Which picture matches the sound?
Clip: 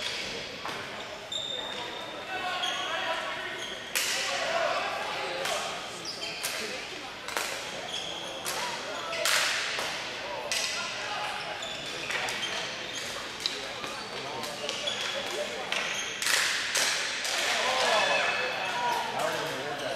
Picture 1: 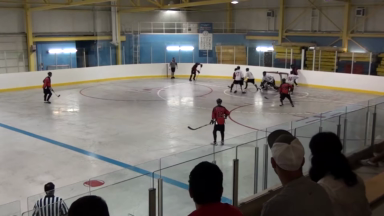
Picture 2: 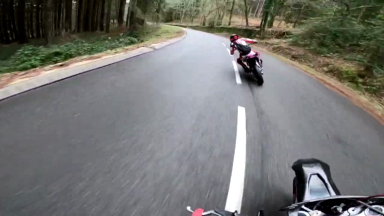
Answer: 1